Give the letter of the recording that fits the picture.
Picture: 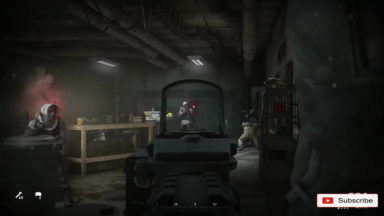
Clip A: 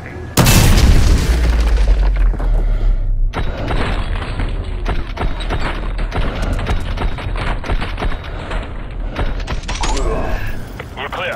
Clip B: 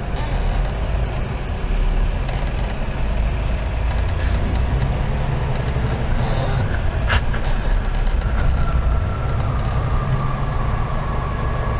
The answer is A